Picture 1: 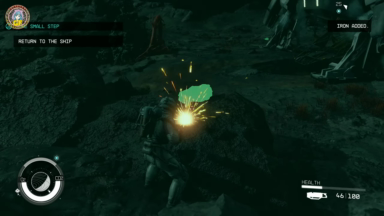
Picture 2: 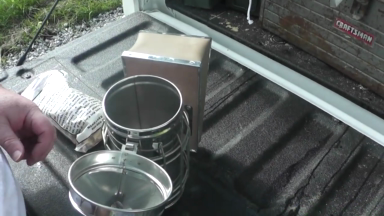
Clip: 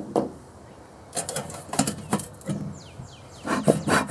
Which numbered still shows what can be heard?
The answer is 2